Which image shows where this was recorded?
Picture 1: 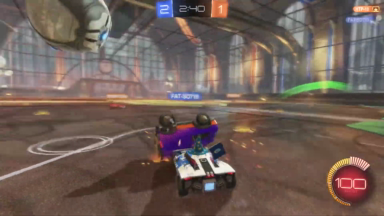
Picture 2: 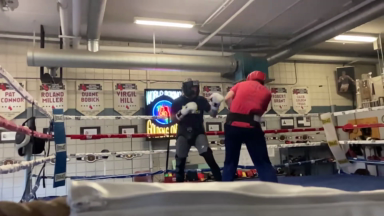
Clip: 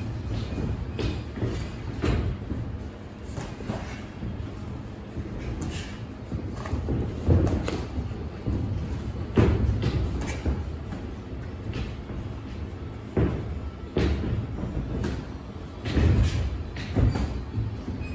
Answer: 2